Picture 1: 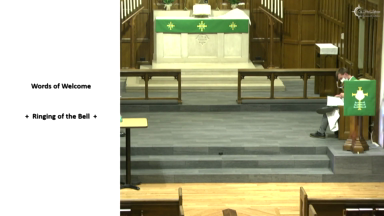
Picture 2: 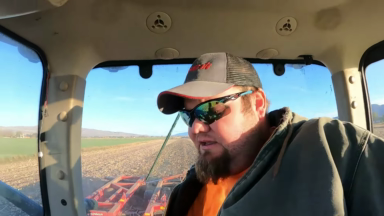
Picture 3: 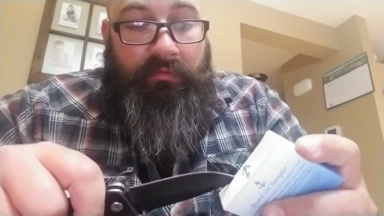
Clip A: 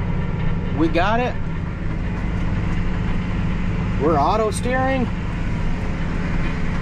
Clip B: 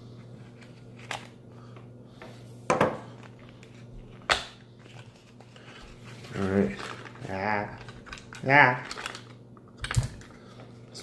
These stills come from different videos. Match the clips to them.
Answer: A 2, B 3